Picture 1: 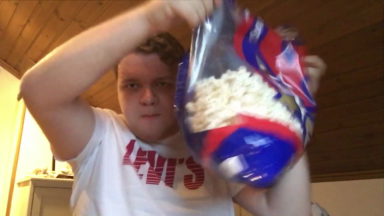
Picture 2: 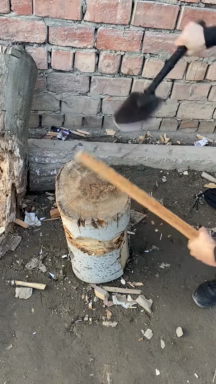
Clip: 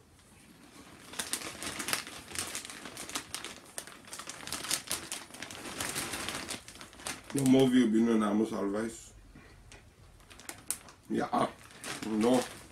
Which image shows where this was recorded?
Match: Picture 1